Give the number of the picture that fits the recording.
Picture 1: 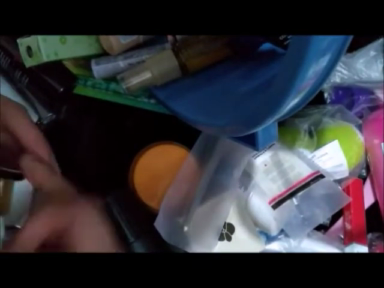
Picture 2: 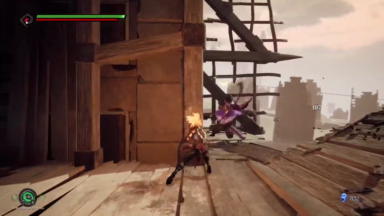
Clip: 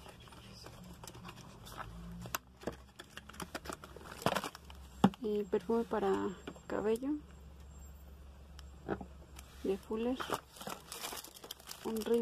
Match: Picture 1